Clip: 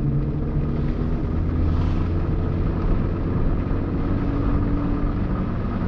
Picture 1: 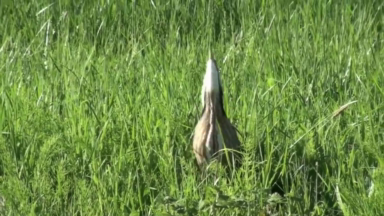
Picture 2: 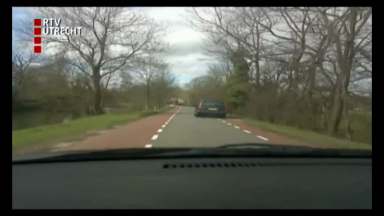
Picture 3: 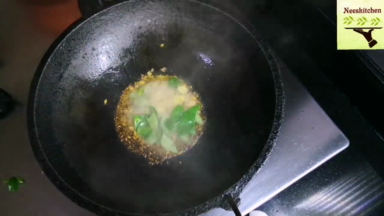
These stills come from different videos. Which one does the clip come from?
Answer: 2